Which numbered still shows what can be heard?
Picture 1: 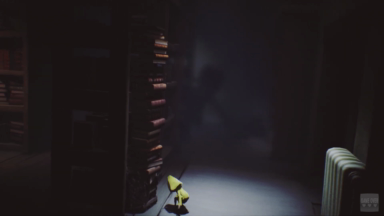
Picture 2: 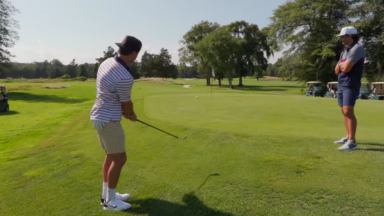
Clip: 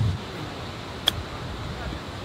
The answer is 2